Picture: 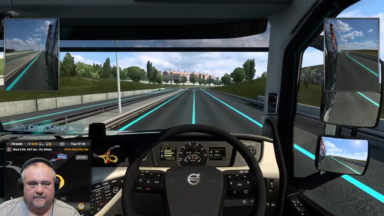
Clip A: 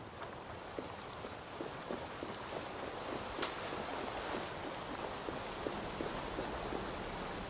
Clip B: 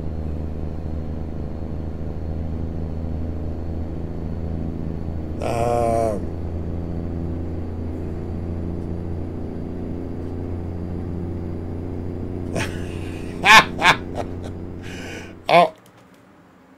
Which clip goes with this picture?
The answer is B